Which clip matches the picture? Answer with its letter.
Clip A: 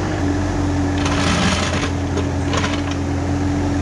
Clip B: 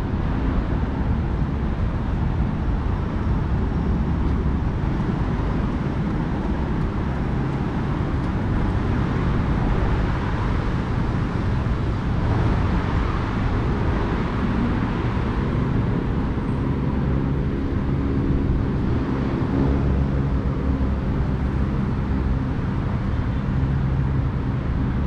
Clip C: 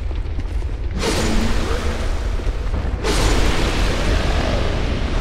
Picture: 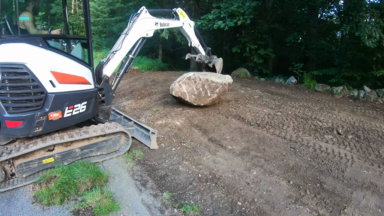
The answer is A